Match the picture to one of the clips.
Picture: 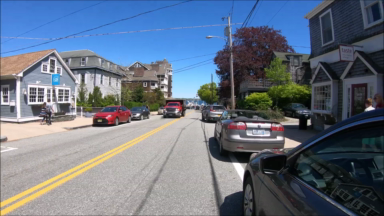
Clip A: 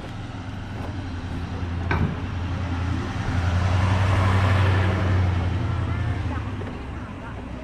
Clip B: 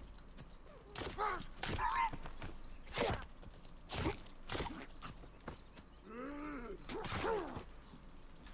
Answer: A